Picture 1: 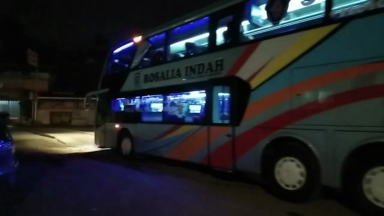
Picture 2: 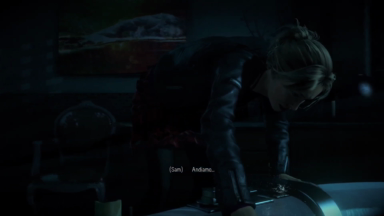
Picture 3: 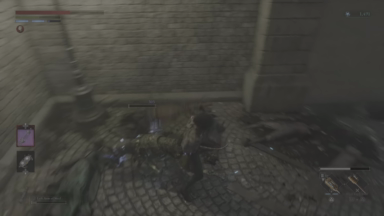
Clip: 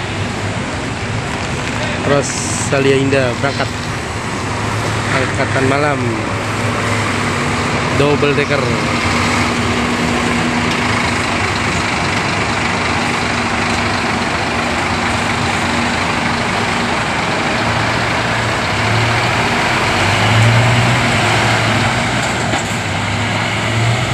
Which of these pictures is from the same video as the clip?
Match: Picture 1